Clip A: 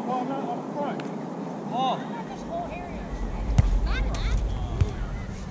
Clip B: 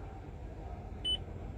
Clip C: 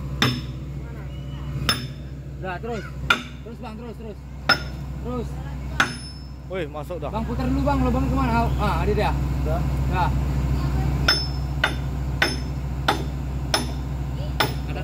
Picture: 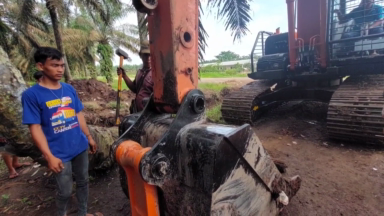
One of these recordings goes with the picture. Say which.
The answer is C